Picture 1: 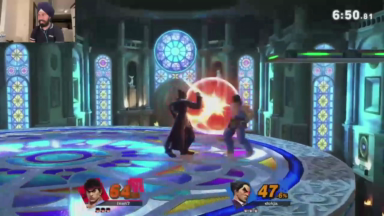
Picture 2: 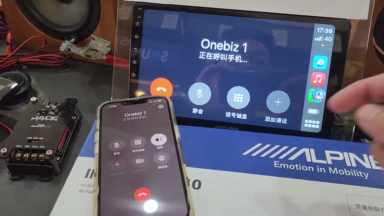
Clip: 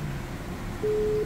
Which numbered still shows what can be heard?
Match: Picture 2